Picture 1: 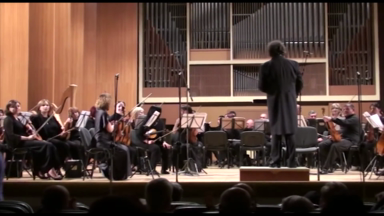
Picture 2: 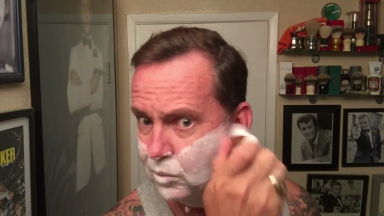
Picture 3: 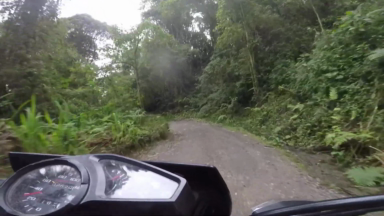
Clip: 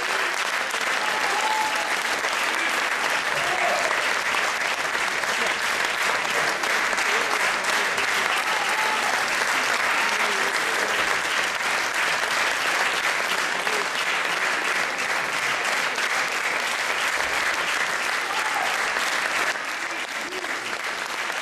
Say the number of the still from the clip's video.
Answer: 1